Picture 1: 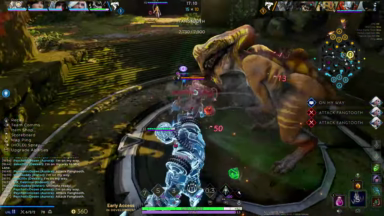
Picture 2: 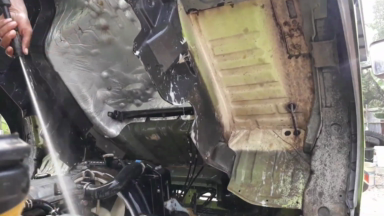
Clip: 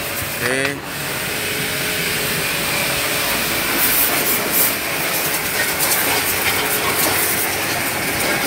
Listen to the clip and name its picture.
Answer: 2